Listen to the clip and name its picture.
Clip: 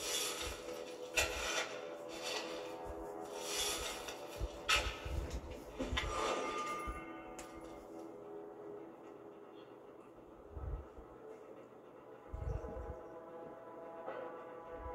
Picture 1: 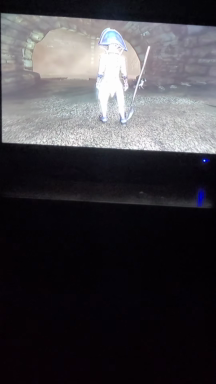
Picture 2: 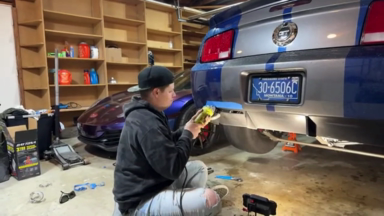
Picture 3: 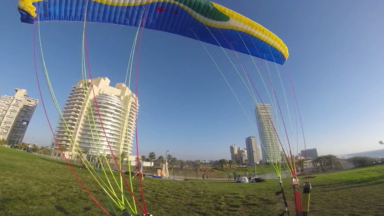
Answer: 1